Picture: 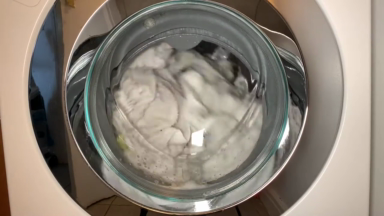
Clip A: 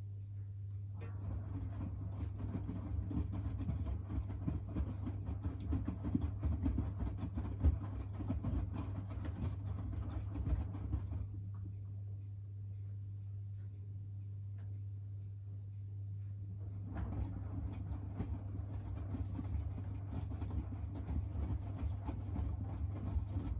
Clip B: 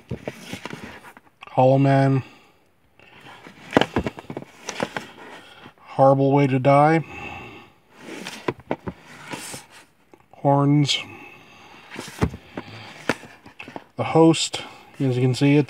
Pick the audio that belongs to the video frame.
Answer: A